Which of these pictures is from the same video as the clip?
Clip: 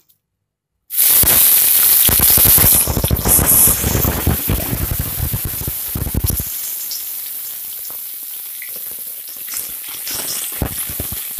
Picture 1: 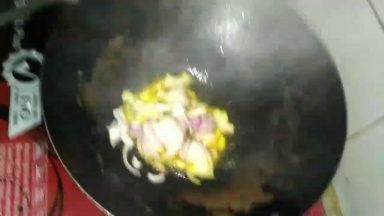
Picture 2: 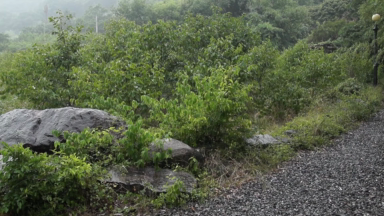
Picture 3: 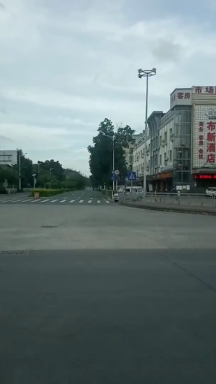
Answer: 1